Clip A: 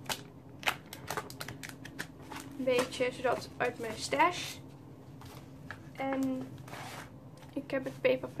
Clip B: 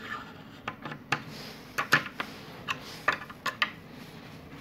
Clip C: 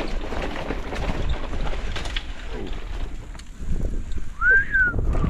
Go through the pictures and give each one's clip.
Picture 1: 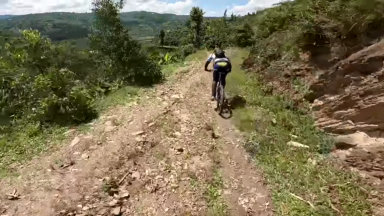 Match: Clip C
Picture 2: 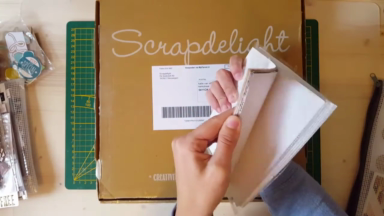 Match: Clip A